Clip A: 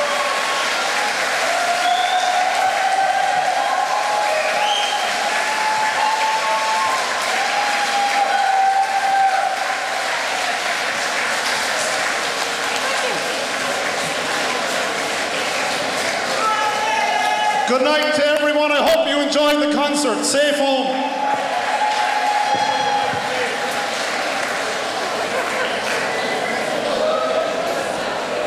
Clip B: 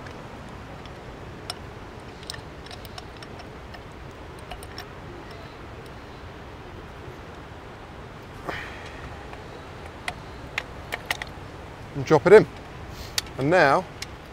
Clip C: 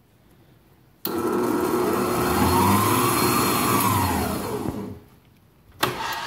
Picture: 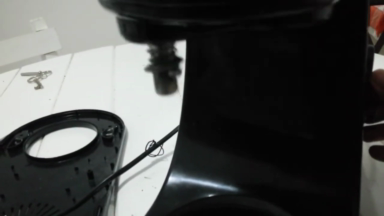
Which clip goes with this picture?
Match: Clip C